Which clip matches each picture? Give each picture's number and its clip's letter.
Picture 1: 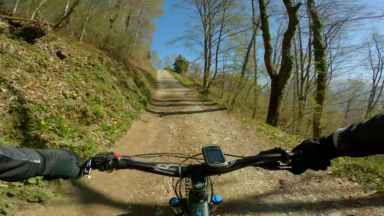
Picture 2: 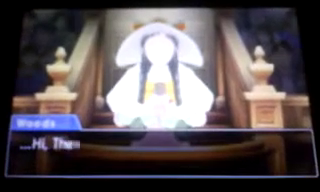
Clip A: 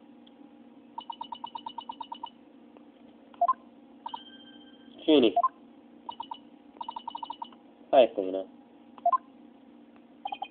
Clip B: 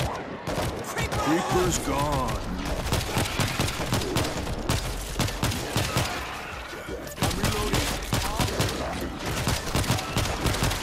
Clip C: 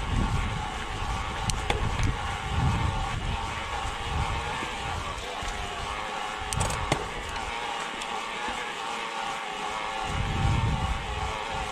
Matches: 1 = C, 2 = A